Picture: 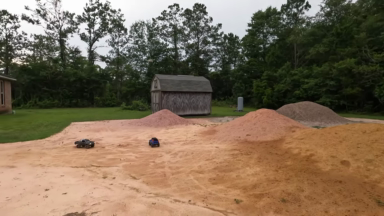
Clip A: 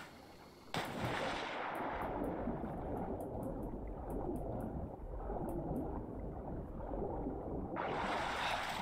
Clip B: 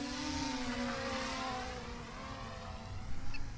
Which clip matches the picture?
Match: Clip B